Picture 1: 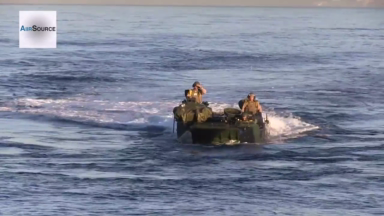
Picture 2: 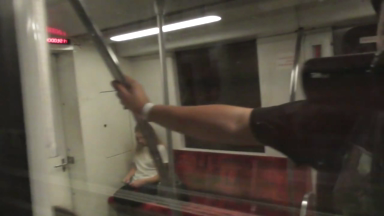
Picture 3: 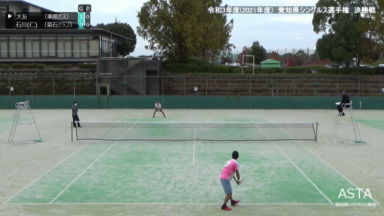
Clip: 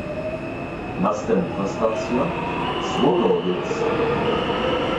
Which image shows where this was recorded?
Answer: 2